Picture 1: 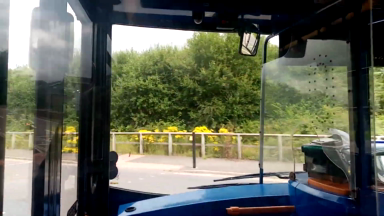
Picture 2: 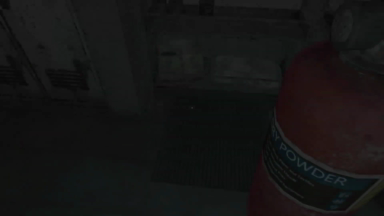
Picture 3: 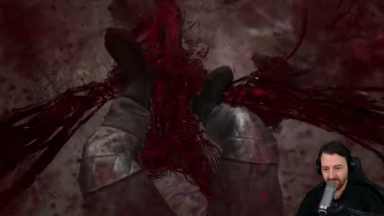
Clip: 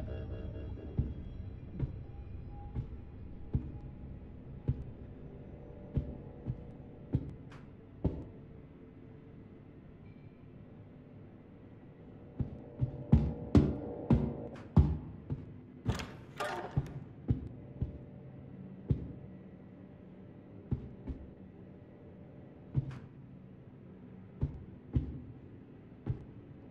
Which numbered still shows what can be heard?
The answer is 2